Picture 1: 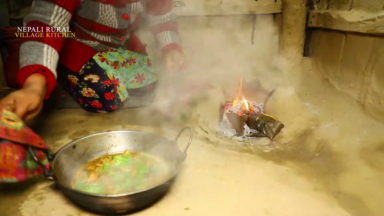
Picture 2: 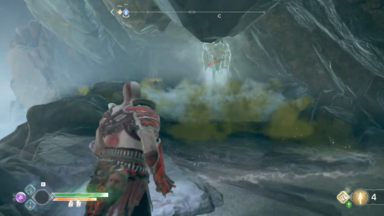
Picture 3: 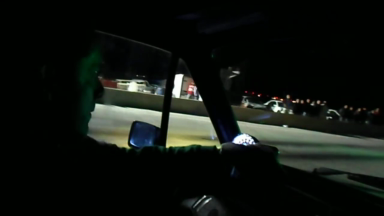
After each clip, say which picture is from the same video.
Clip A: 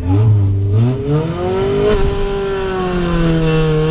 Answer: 3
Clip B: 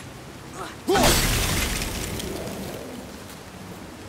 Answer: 2